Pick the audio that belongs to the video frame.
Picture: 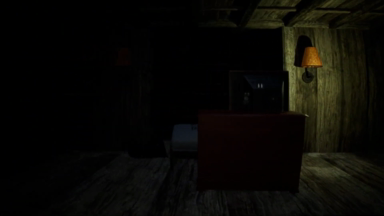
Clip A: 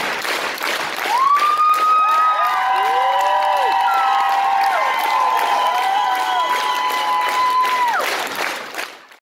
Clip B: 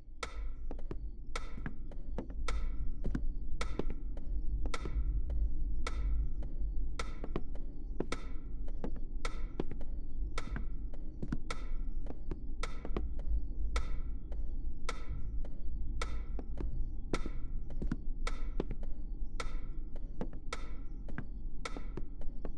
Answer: B